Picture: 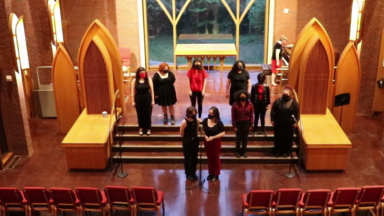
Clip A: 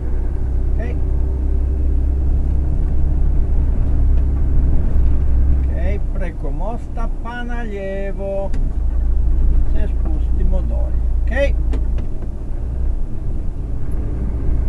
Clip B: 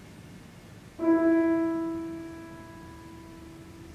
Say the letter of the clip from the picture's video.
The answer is B